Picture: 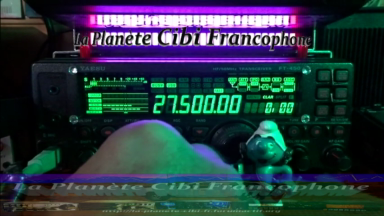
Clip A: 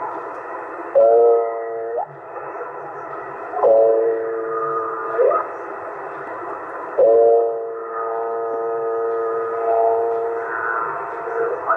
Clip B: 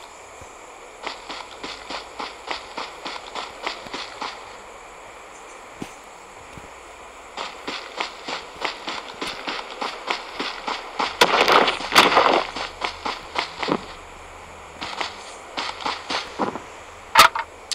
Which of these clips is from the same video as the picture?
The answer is A